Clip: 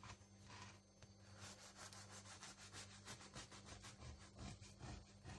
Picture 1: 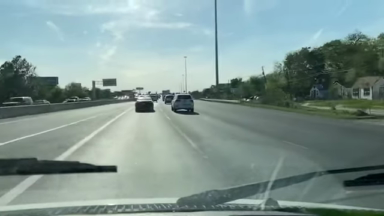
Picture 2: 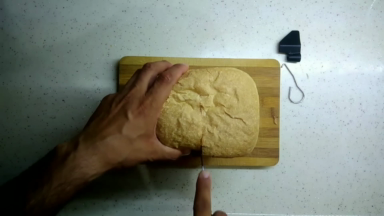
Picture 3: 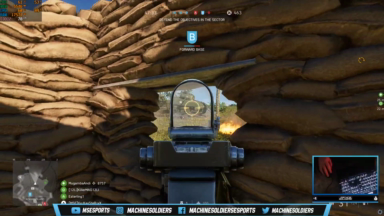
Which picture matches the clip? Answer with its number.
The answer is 2